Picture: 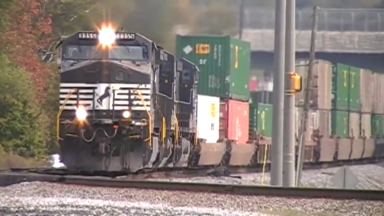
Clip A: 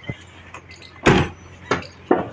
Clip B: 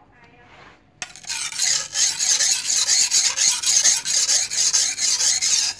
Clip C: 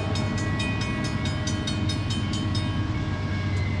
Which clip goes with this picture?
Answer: C